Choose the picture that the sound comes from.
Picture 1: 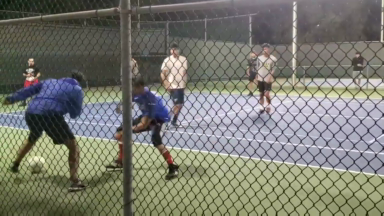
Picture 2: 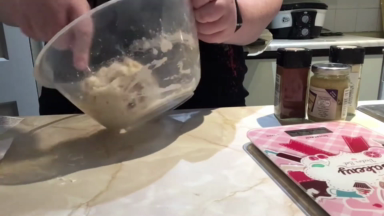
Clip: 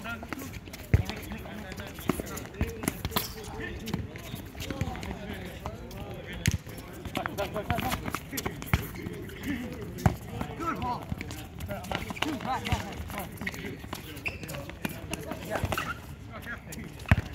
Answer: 1